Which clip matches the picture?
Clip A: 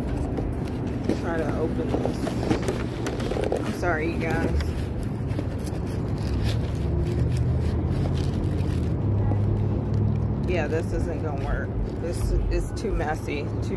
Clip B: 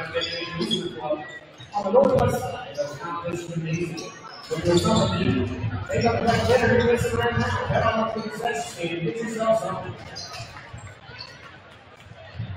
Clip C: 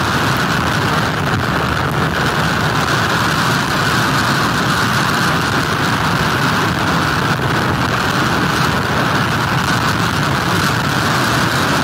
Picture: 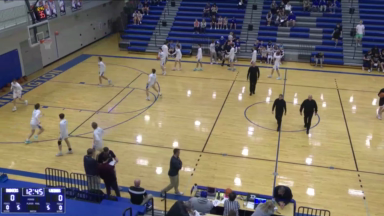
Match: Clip B